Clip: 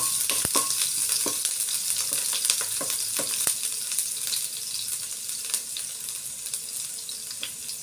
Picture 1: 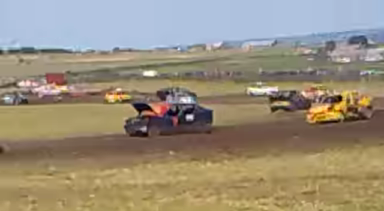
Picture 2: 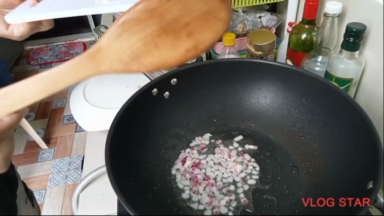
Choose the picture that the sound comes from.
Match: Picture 2